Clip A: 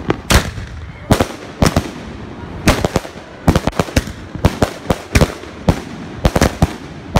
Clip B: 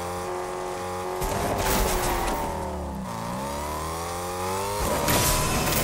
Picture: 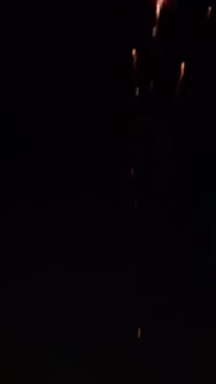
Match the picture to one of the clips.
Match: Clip A